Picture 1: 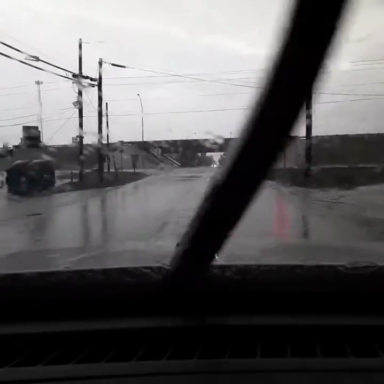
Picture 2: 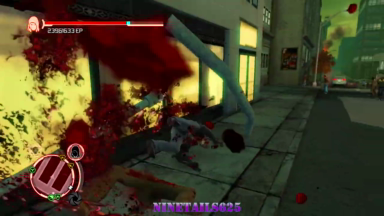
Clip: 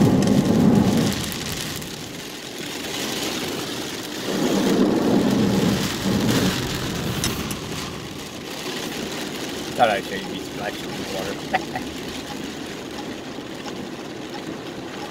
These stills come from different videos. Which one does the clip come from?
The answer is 1